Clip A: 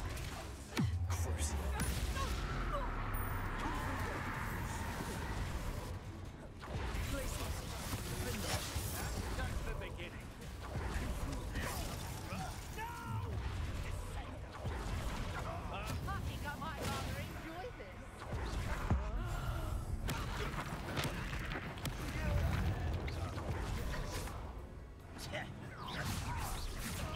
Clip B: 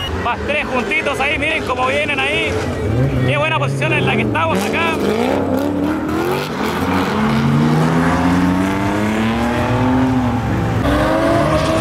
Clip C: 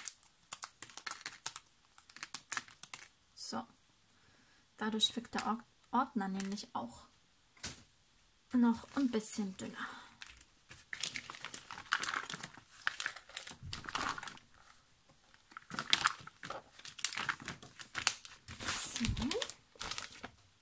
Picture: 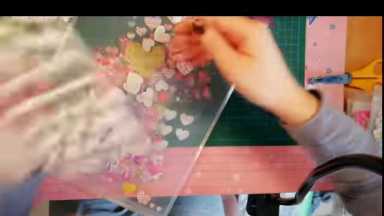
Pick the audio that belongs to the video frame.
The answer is C